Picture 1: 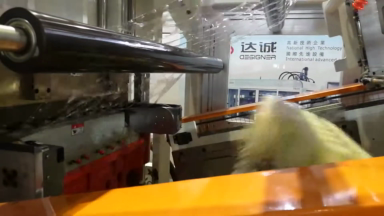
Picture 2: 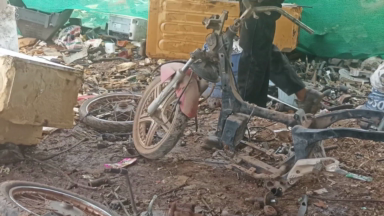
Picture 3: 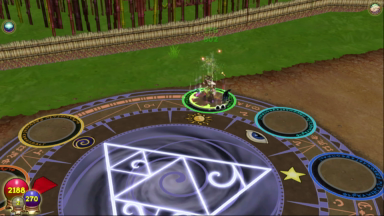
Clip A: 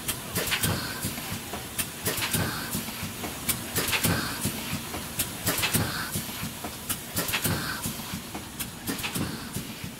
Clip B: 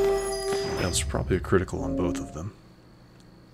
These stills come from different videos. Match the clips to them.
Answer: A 1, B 3